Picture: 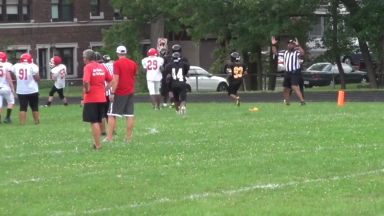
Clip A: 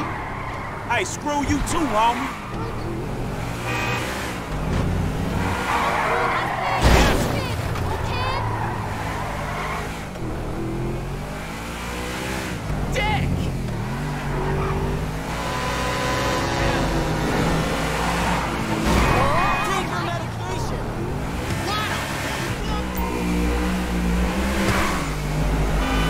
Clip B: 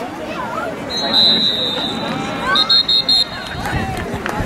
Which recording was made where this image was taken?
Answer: B